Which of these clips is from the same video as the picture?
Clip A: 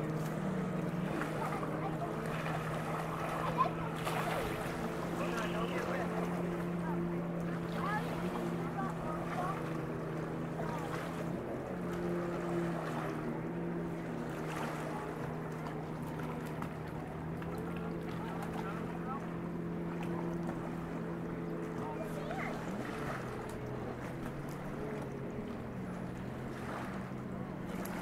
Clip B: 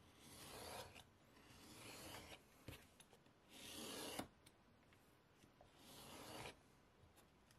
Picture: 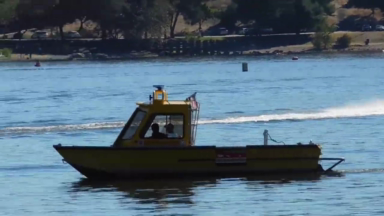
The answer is A